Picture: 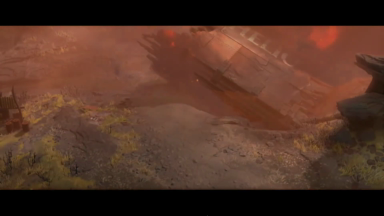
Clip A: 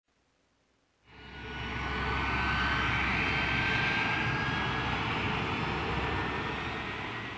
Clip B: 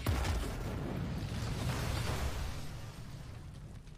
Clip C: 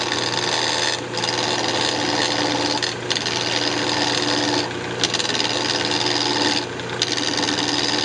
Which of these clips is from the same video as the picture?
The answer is B